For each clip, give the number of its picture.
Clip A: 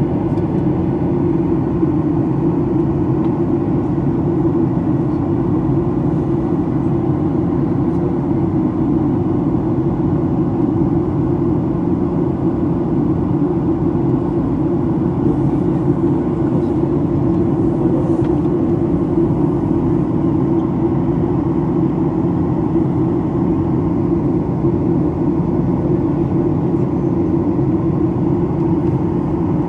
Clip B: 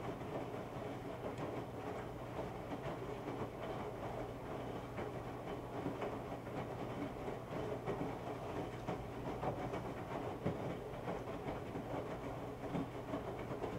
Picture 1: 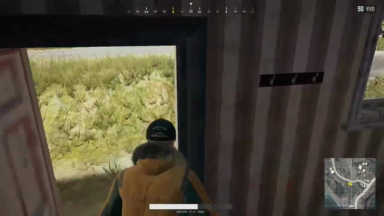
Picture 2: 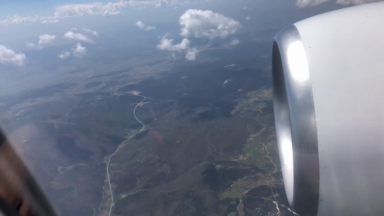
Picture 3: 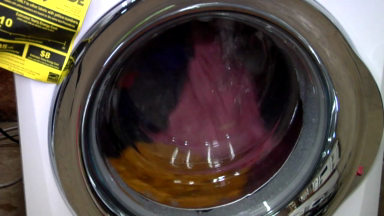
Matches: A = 2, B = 3